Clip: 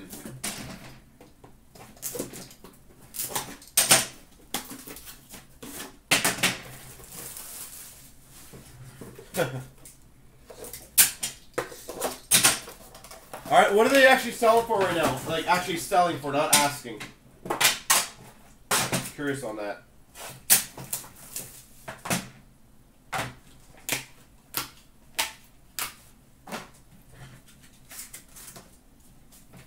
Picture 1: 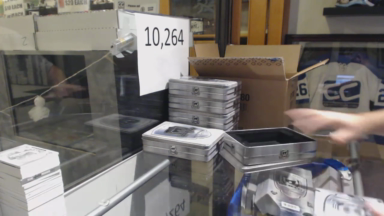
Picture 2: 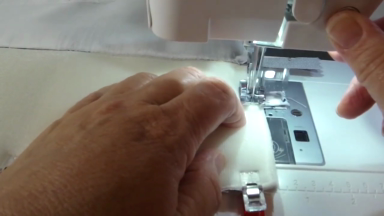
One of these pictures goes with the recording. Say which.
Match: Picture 1